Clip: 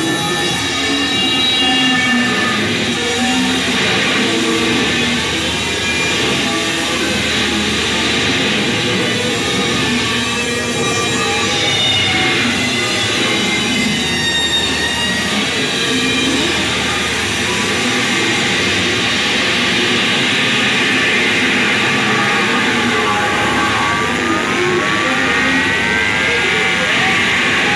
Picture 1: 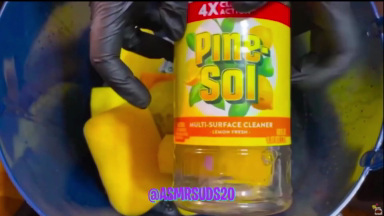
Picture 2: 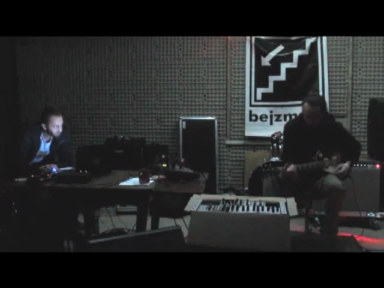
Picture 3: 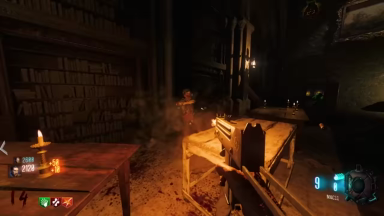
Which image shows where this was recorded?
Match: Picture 2